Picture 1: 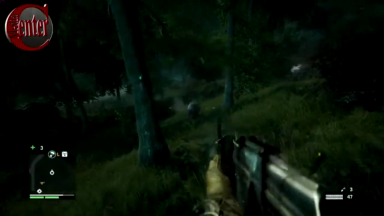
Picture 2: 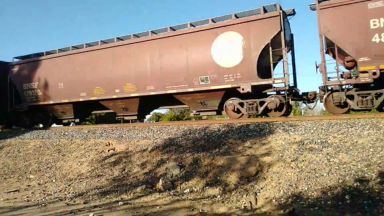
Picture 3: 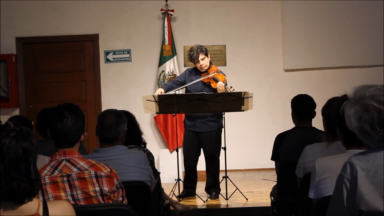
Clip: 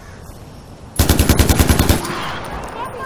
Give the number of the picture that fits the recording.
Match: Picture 1